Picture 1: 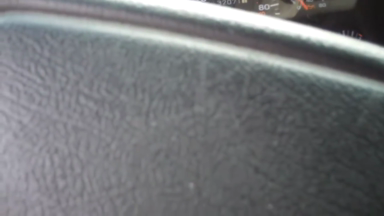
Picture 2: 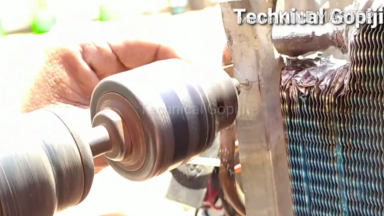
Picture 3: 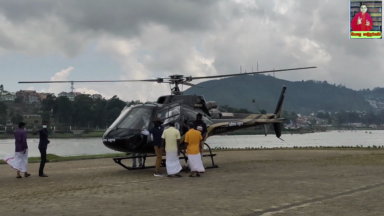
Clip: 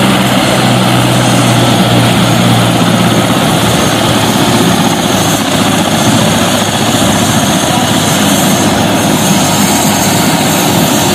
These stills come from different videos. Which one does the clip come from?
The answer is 3